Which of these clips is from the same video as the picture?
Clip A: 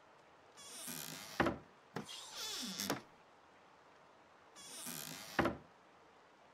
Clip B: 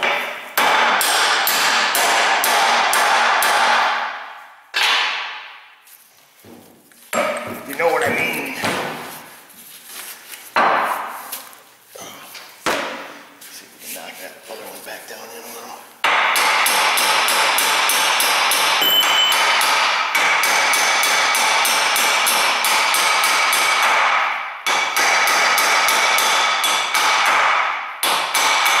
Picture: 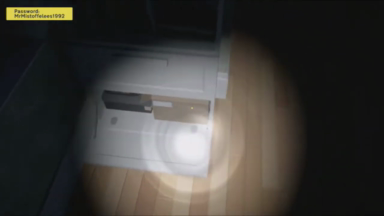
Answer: A